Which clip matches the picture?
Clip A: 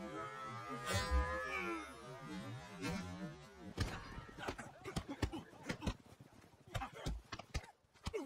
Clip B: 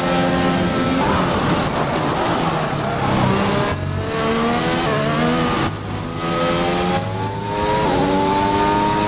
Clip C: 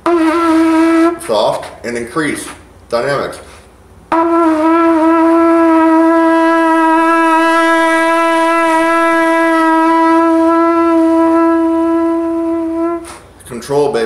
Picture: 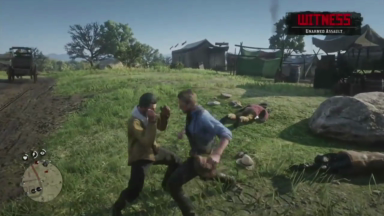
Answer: A